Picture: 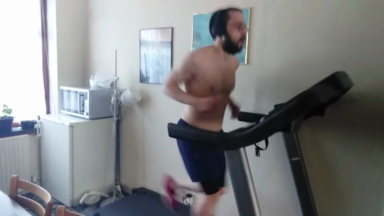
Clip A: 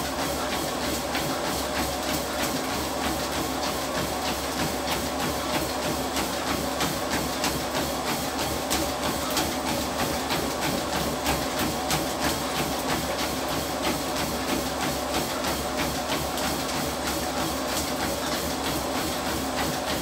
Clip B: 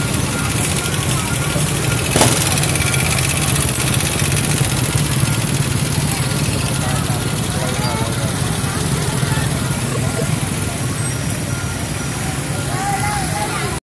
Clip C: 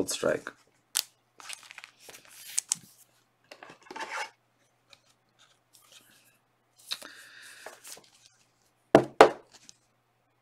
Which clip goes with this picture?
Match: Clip A